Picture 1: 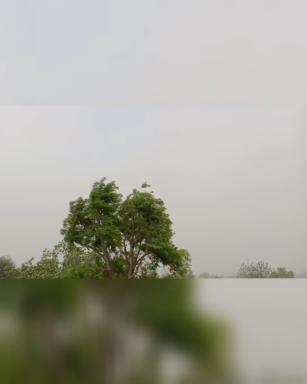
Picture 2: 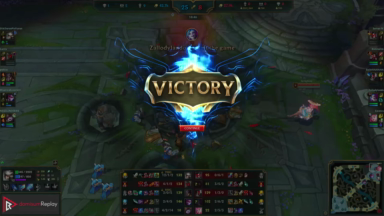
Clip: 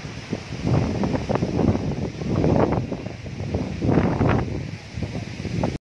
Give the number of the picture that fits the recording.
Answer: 1